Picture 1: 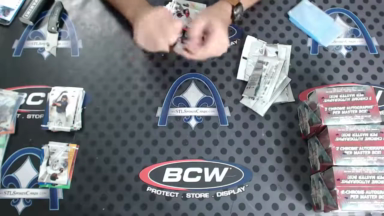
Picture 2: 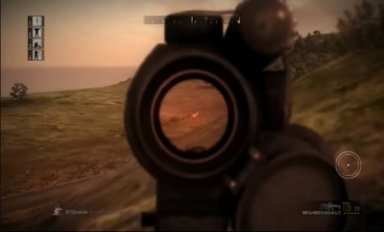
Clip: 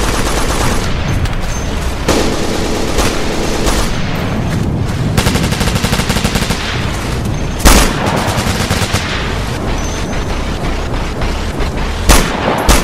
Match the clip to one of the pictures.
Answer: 2